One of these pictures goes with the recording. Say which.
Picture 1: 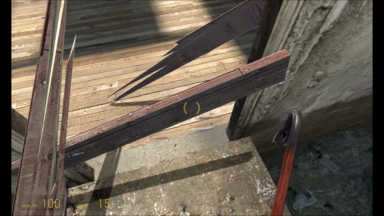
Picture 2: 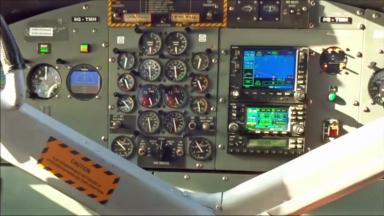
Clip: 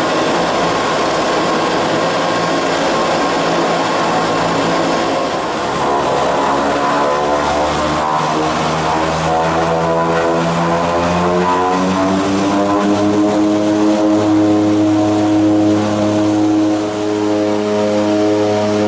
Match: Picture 2